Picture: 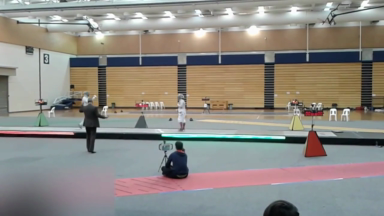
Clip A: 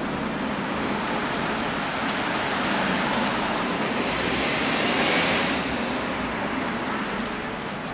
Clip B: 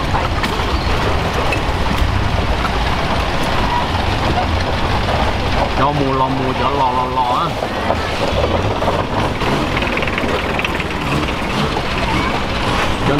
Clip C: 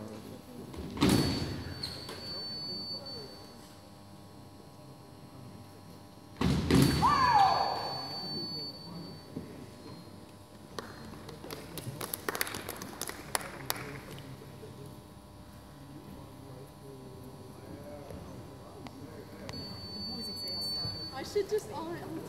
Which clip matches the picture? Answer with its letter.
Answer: C